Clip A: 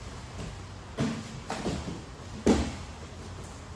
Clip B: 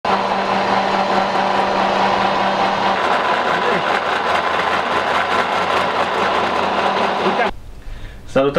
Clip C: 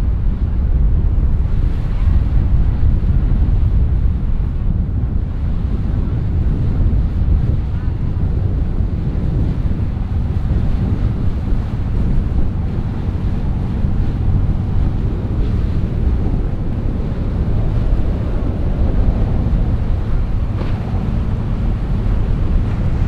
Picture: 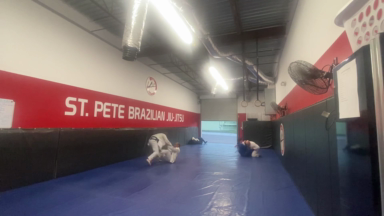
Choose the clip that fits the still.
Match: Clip A